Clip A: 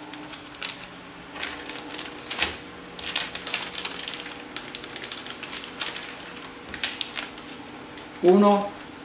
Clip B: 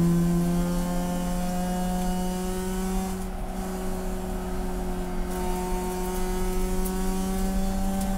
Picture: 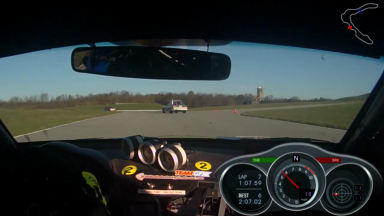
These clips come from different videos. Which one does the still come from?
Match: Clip B